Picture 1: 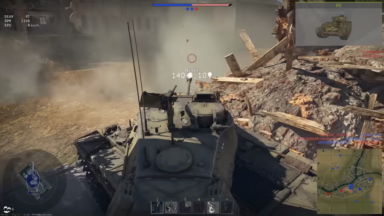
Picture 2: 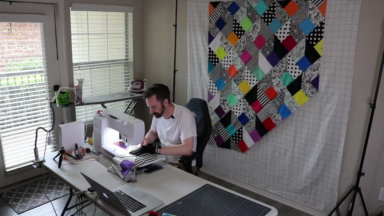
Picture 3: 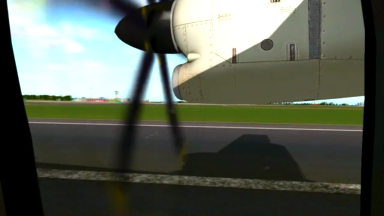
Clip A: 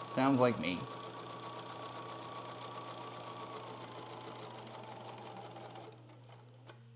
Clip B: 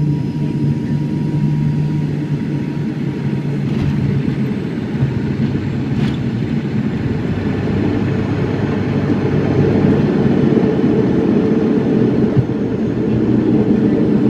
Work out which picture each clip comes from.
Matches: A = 2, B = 3